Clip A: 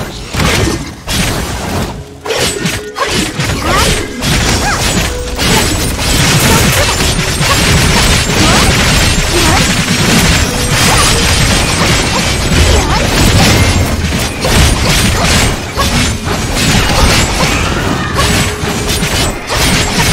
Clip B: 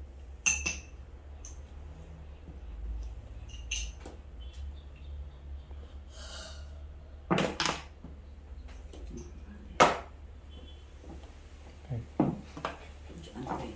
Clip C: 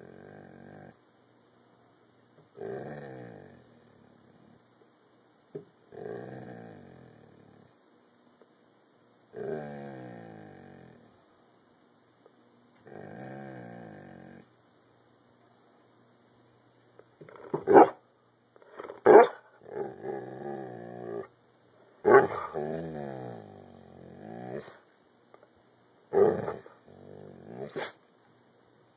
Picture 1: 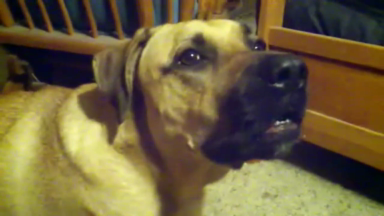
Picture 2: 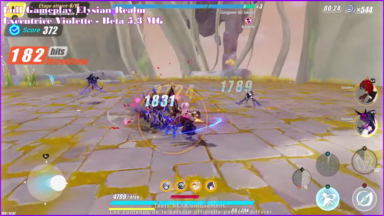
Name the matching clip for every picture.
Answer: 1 C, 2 A